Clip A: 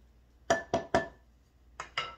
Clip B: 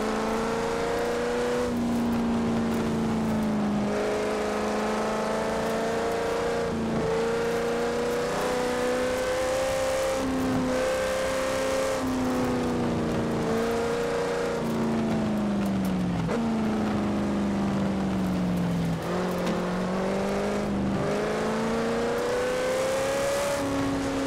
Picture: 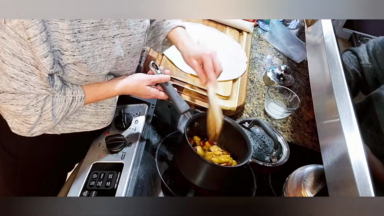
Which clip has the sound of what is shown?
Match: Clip A